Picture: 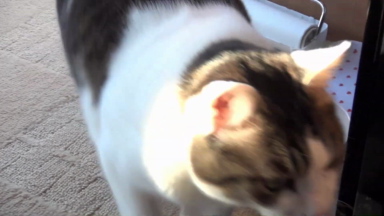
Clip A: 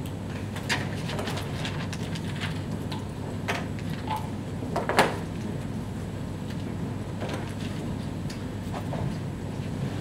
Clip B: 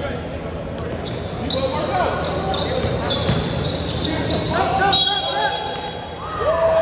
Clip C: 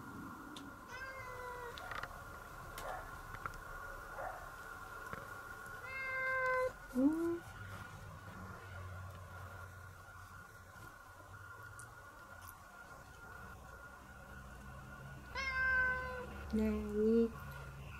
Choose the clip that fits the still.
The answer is C